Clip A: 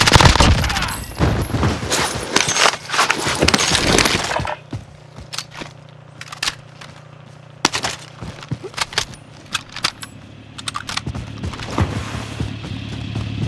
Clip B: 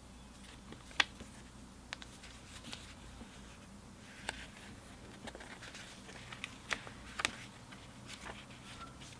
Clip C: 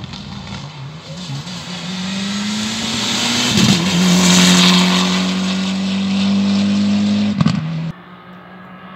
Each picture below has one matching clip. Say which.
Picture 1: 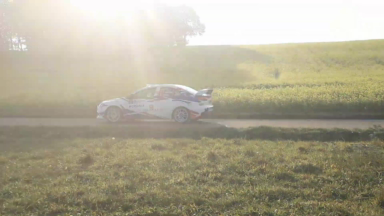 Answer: C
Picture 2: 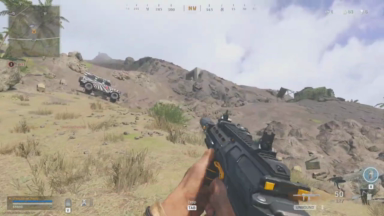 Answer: A